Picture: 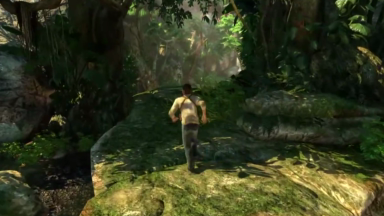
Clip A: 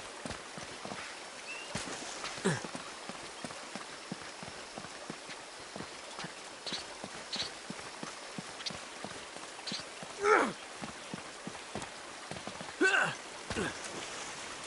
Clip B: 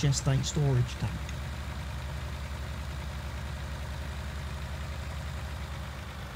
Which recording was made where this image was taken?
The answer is A